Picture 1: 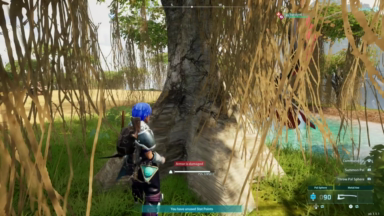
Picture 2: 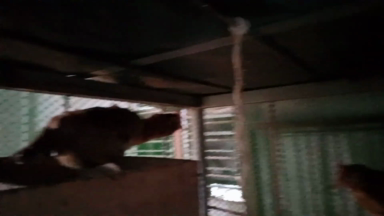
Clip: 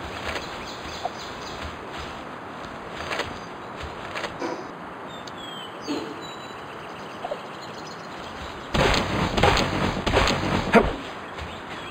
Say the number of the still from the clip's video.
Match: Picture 1